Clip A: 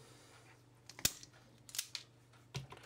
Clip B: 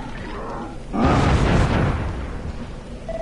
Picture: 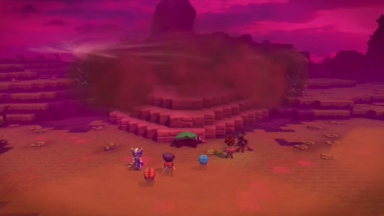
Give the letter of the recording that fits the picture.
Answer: B